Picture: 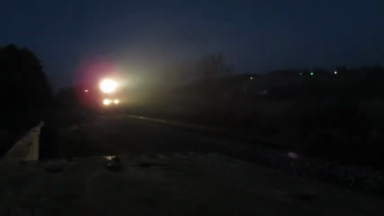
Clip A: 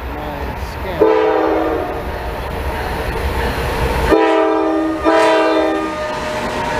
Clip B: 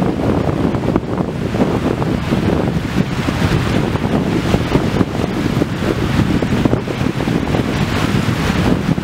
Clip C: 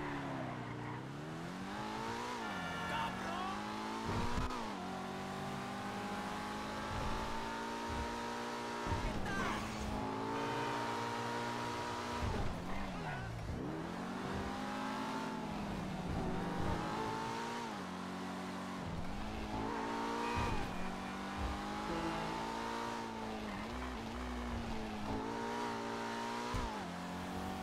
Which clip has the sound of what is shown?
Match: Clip A